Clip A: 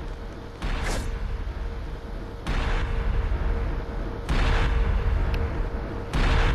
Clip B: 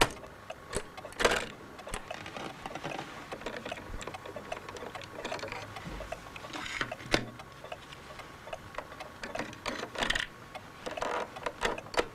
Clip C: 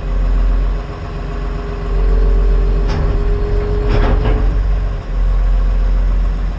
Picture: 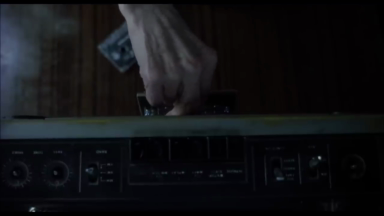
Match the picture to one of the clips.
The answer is B